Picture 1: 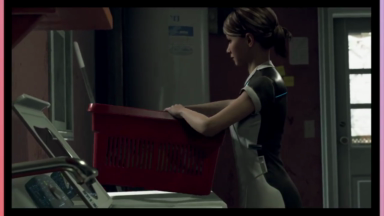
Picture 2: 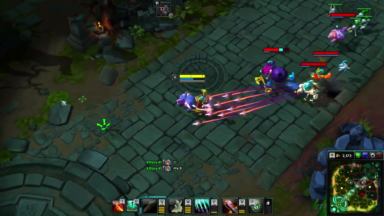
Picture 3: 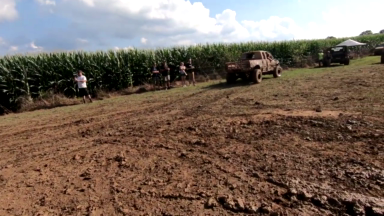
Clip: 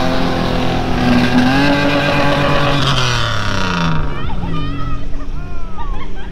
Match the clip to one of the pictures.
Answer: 3